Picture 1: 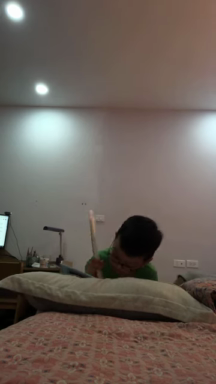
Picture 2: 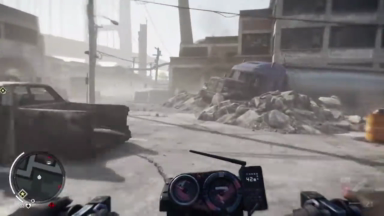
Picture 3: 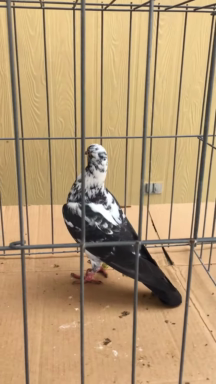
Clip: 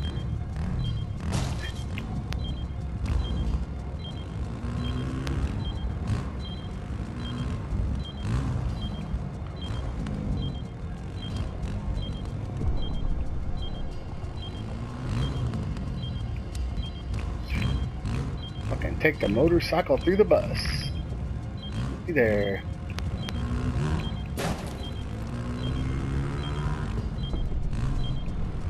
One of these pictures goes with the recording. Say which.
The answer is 2